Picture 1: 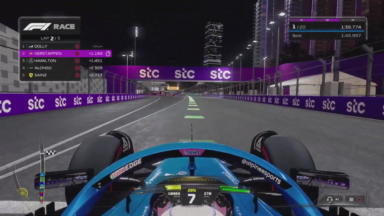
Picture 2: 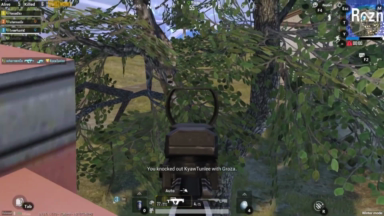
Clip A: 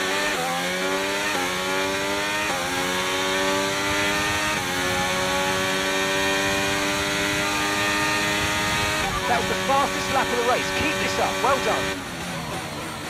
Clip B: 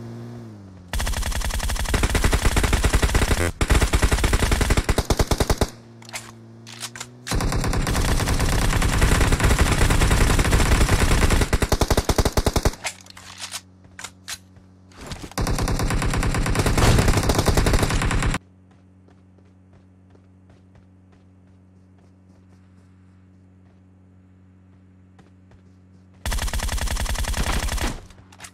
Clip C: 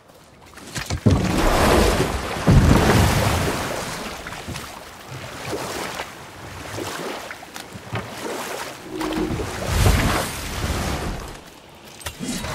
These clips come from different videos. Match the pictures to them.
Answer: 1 A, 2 B